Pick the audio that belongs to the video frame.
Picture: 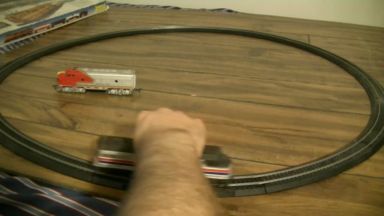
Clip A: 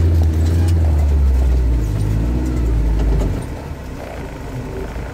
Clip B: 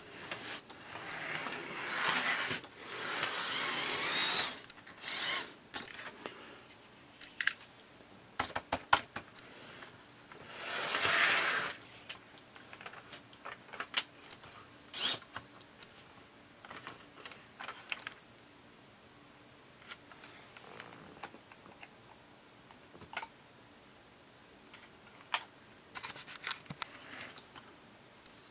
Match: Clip B